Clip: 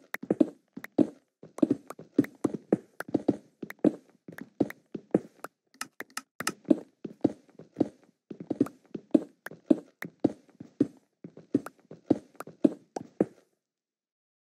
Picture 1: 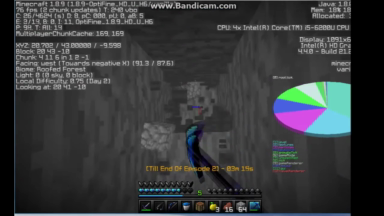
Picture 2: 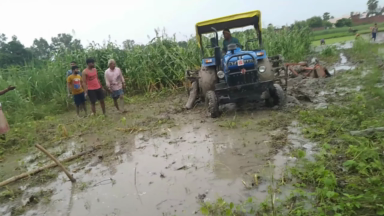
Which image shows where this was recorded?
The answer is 1